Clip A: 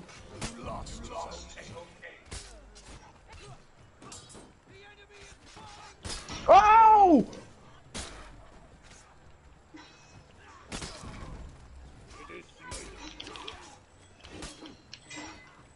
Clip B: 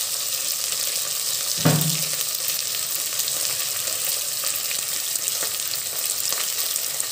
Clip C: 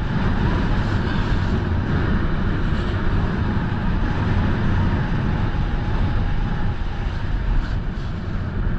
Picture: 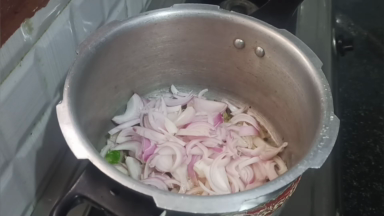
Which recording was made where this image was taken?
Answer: B